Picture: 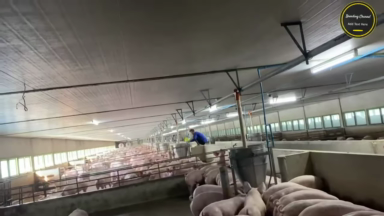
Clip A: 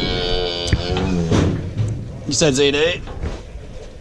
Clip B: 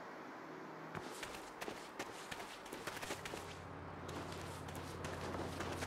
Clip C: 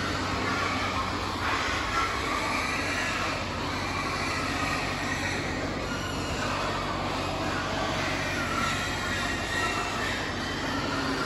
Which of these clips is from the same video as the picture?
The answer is C